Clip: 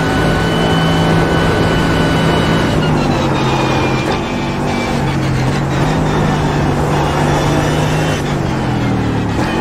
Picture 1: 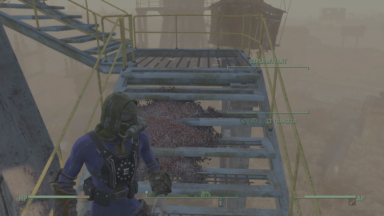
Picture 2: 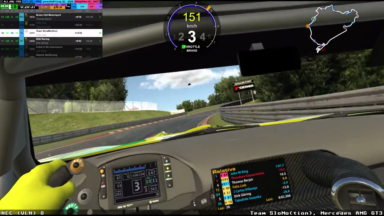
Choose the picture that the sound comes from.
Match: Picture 2